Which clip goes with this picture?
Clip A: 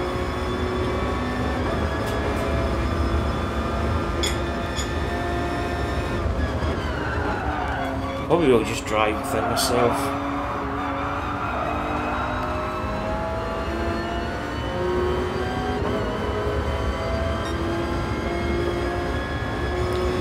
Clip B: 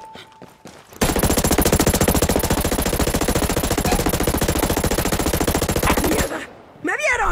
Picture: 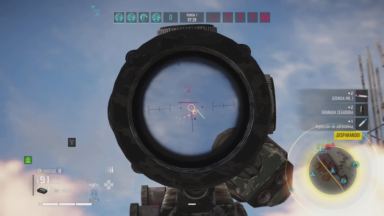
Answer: B